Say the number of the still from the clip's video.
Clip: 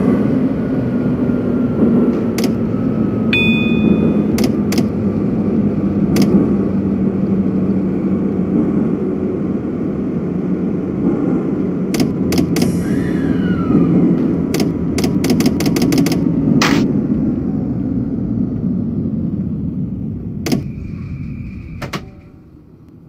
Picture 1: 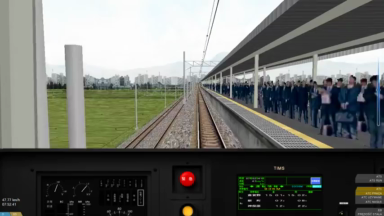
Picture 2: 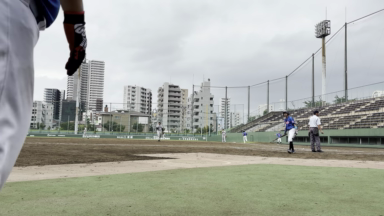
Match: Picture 1